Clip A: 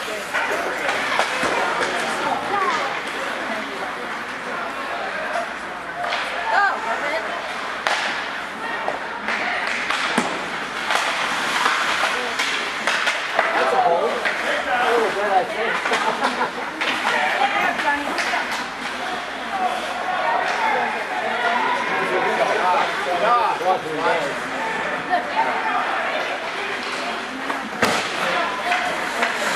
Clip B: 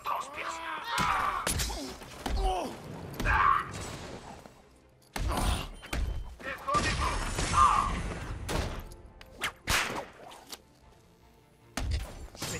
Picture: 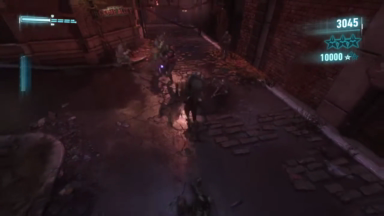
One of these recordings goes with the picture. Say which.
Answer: B